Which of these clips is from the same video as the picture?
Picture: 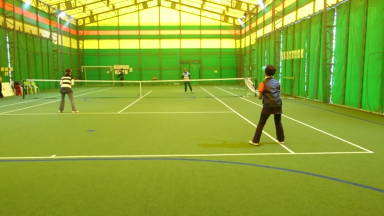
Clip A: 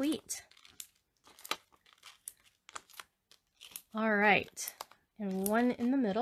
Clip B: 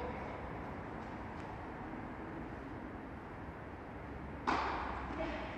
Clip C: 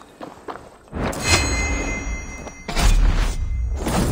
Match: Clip B